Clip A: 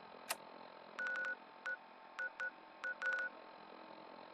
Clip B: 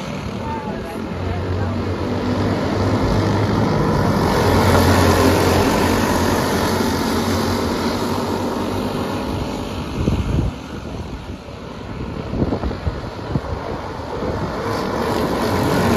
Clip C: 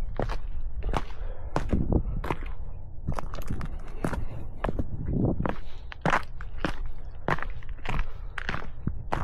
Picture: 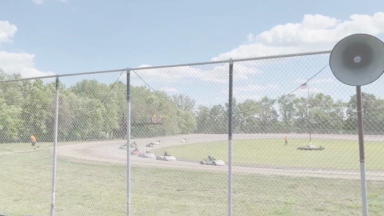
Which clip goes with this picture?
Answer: B